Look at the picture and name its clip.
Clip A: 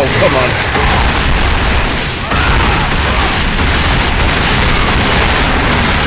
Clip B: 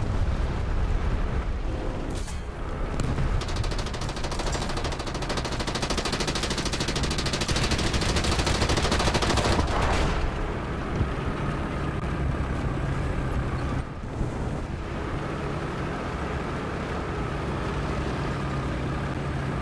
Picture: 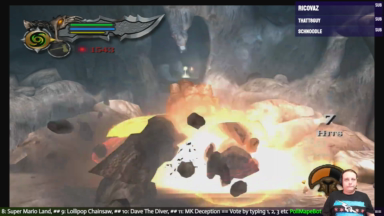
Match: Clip A